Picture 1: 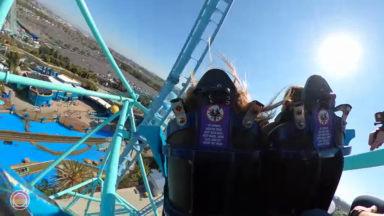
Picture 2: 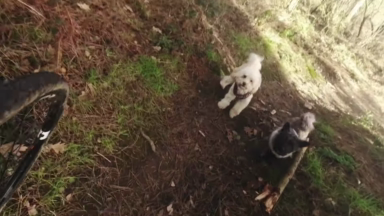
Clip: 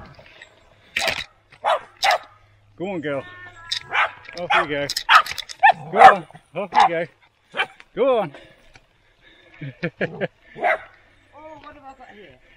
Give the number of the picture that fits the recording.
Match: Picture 2